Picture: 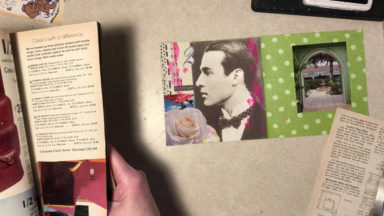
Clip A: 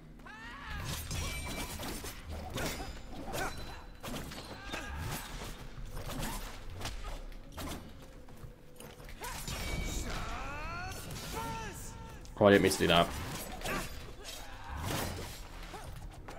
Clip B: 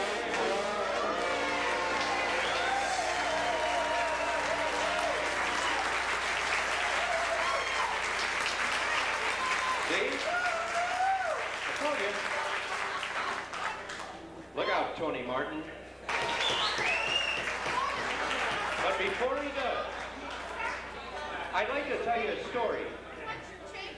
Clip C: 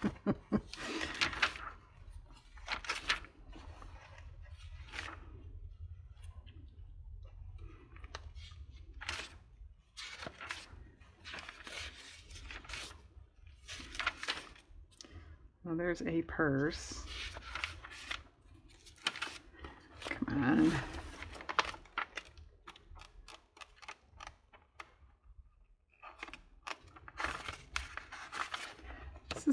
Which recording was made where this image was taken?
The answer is C